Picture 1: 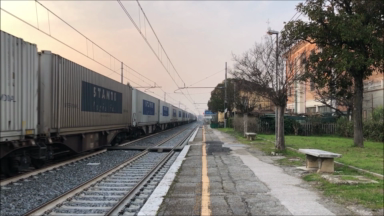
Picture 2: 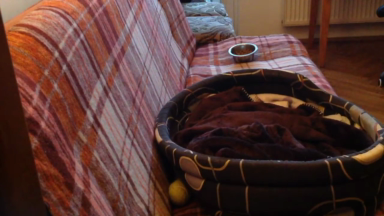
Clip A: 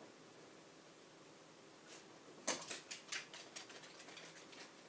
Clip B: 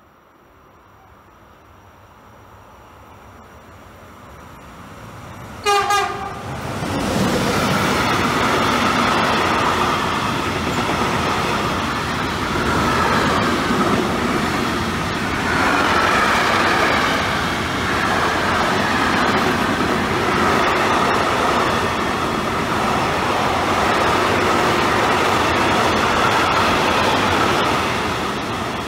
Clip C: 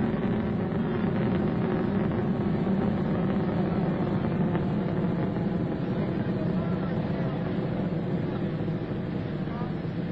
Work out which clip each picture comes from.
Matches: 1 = B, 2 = A